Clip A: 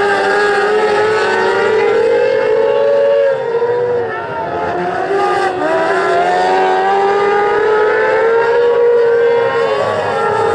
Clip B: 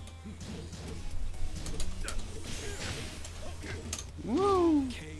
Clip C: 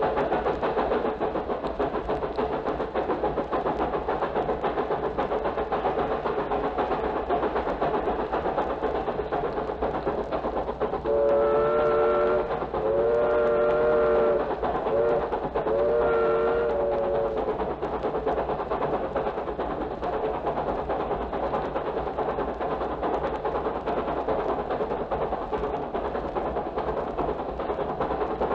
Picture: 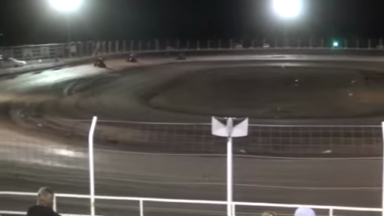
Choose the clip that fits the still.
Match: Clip A